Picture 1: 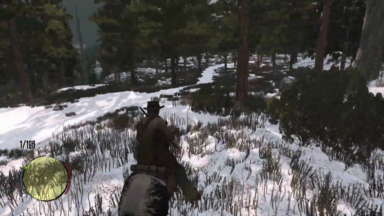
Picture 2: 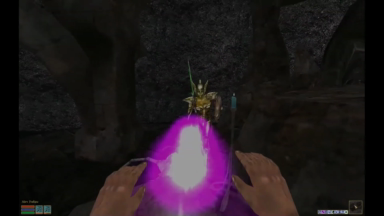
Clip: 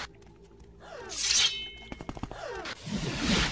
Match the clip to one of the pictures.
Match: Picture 2